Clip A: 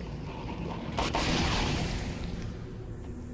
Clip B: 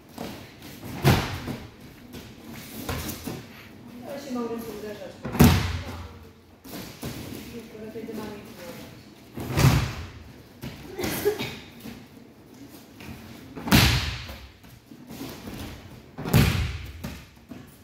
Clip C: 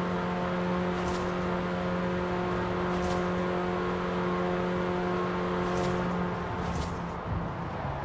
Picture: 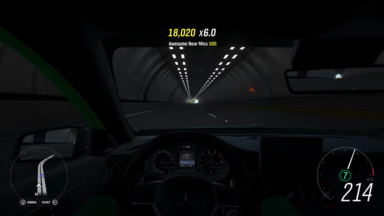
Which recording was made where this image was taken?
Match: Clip C